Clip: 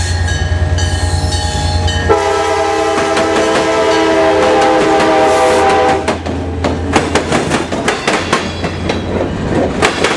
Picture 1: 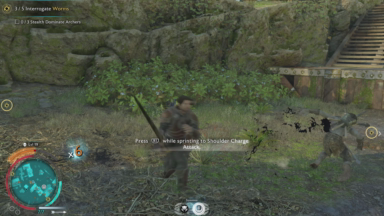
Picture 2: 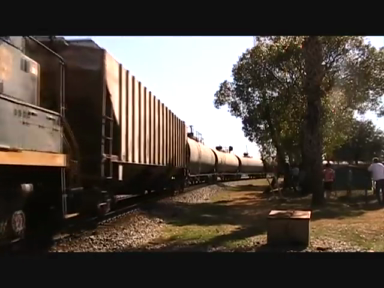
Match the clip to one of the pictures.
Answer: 2